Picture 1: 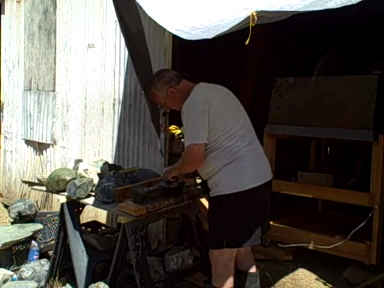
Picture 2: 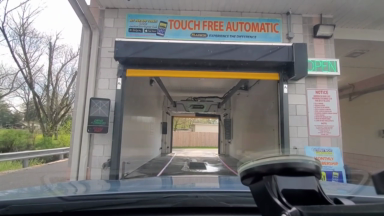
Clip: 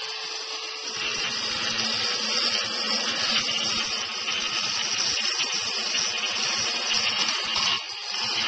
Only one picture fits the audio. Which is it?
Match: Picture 1